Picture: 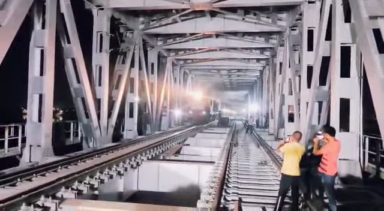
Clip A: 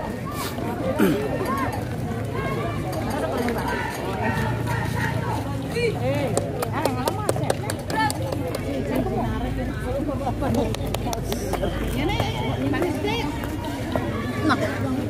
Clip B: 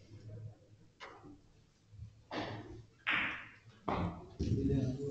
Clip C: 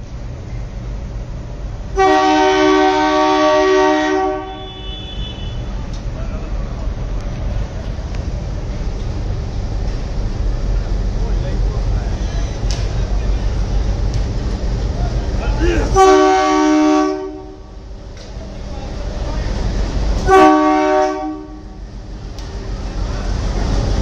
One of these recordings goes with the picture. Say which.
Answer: C